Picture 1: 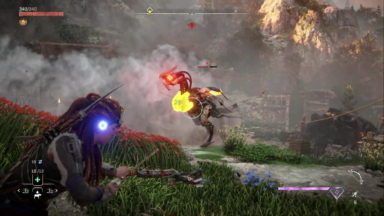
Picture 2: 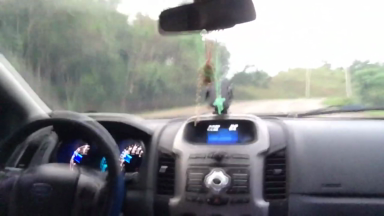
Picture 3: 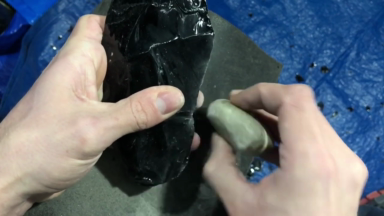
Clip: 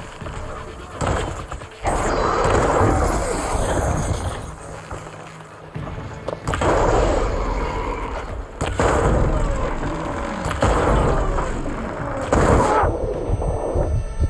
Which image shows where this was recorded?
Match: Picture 1